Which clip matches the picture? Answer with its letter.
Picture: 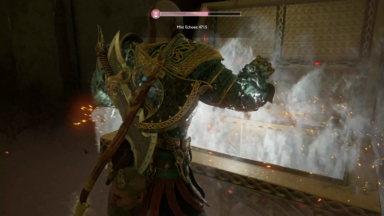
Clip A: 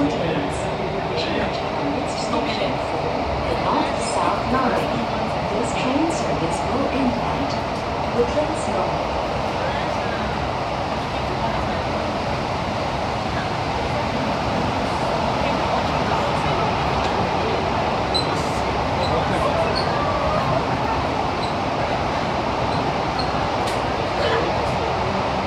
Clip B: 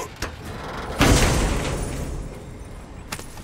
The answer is B